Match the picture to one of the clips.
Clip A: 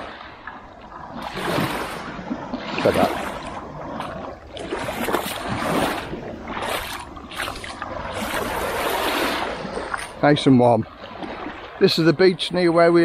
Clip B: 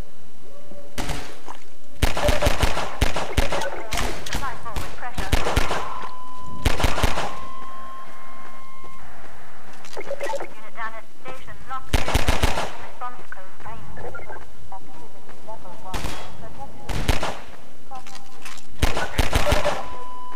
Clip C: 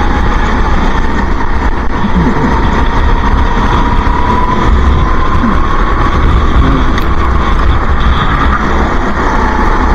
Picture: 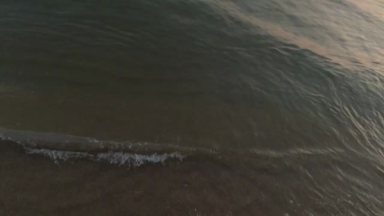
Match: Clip A